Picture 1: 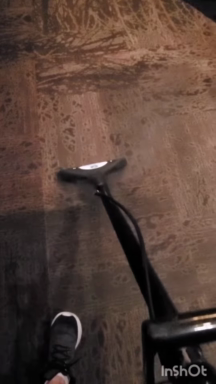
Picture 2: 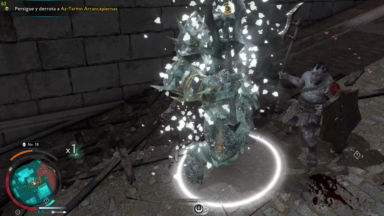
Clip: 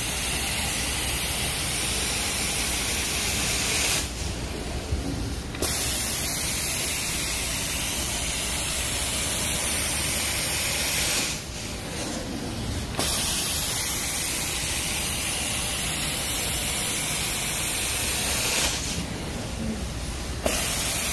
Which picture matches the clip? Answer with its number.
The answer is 1